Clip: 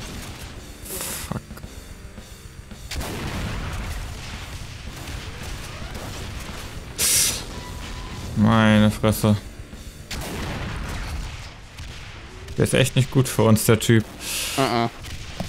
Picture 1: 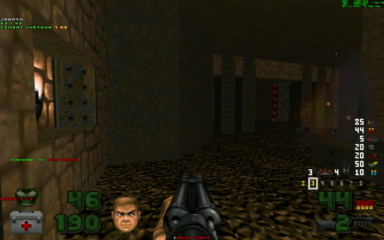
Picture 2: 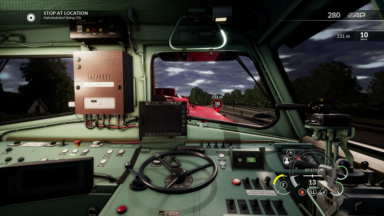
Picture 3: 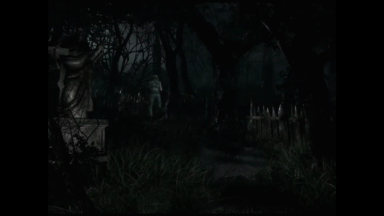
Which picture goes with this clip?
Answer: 1